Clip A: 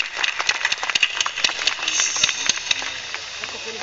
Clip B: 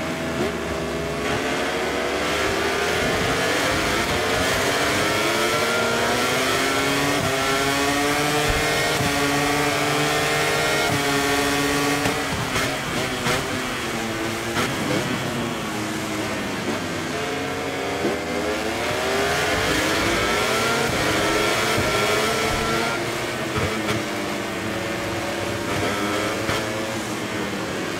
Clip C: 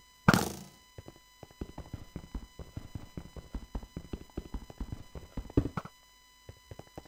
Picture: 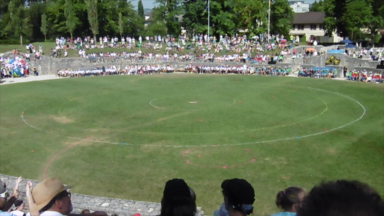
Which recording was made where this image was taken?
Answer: A